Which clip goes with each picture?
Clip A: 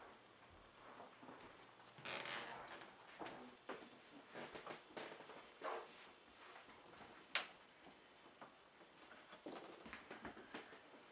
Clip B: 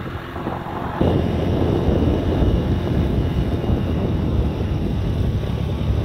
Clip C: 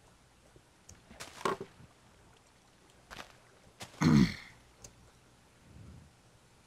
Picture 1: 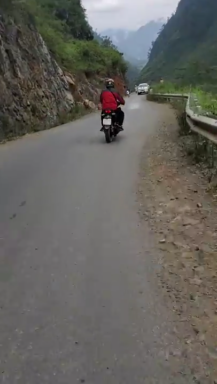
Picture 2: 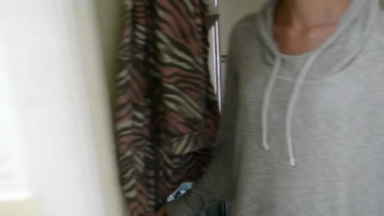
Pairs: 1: B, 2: A